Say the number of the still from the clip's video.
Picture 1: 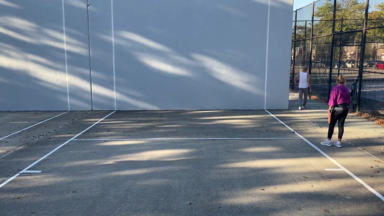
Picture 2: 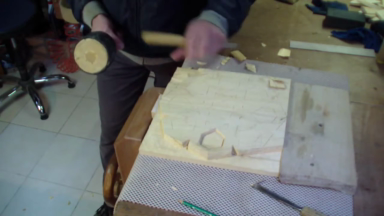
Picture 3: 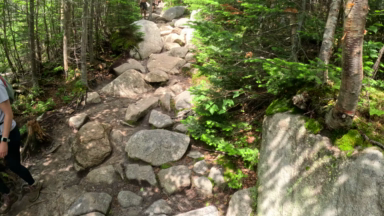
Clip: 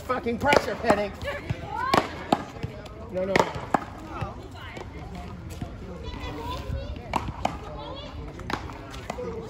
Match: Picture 1